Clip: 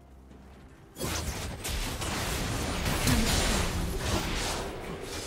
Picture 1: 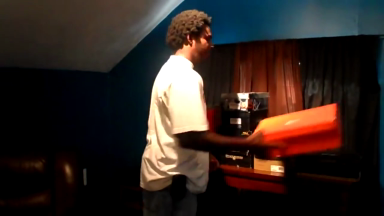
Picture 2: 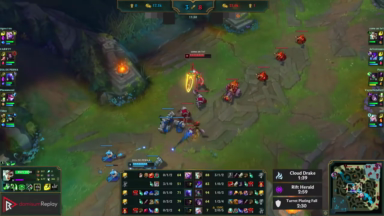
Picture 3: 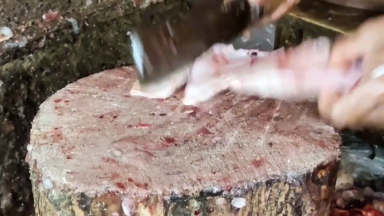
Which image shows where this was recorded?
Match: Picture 2